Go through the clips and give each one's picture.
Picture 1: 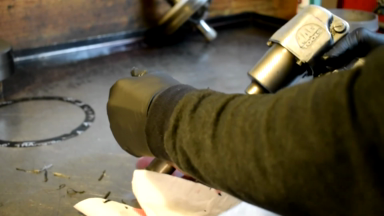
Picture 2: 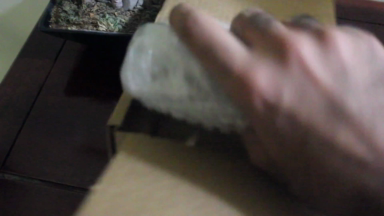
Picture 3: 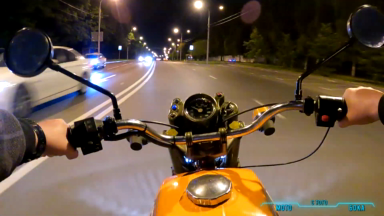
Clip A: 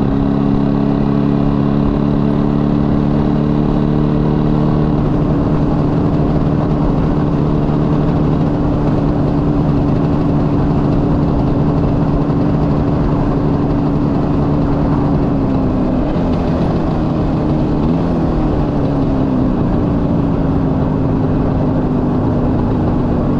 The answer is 3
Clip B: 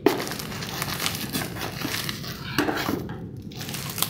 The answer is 2